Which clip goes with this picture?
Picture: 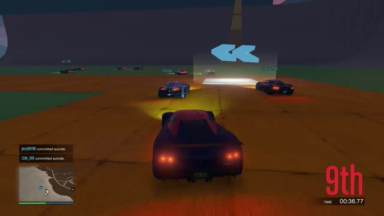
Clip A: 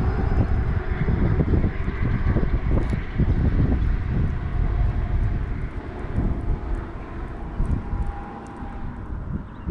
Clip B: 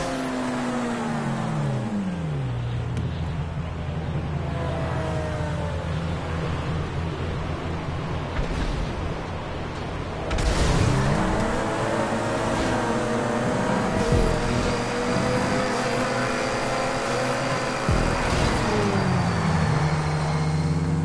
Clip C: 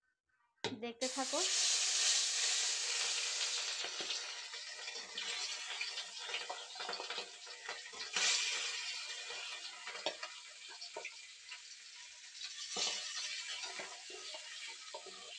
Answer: B